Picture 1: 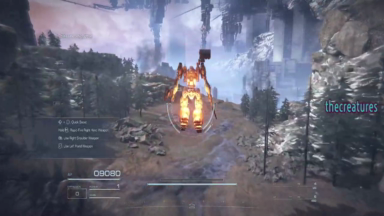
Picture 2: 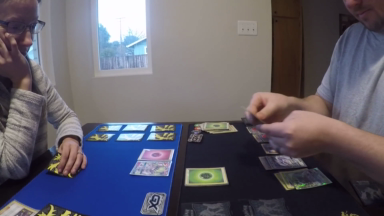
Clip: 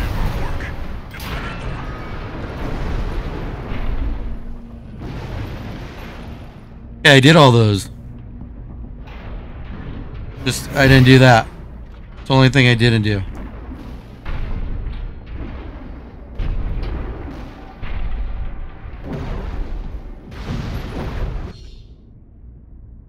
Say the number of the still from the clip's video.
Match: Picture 1